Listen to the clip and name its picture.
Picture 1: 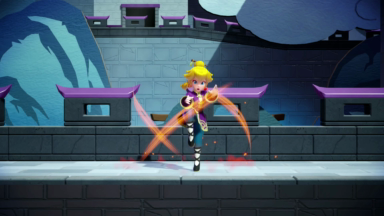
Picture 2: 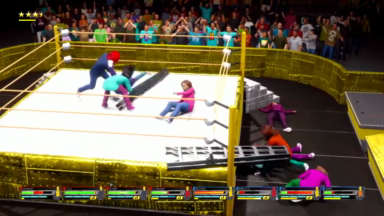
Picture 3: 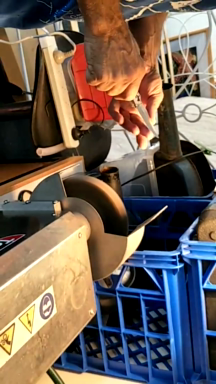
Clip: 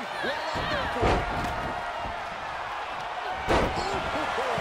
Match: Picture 2